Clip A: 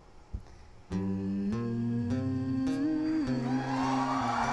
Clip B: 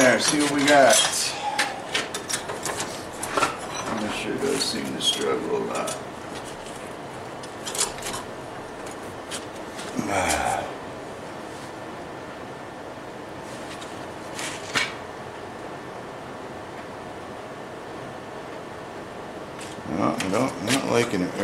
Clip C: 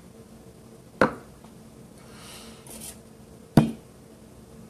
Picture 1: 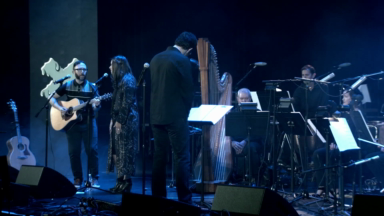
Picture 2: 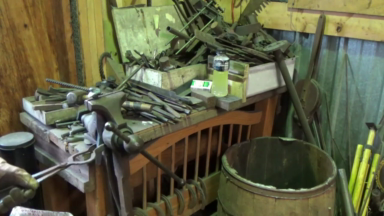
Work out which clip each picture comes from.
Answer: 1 A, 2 B